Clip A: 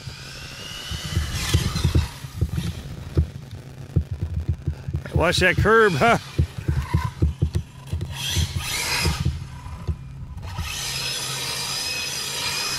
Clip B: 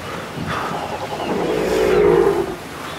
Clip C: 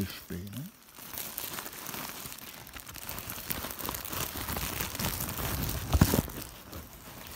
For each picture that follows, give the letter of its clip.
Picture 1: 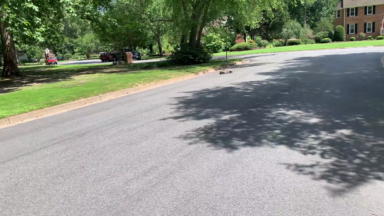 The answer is A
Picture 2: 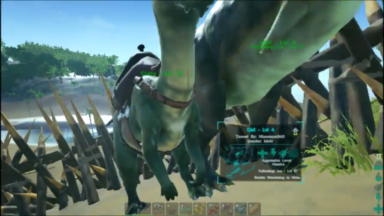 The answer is B